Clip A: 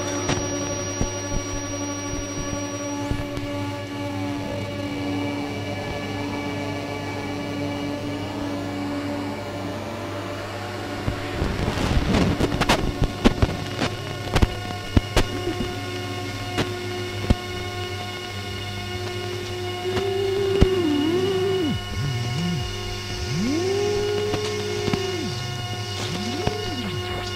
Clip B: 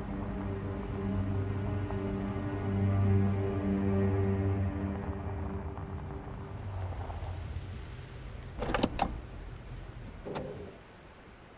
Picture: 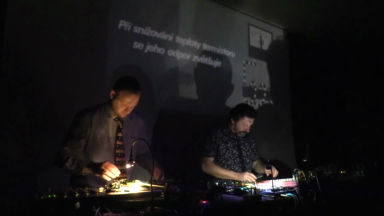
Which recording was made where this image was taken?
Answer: A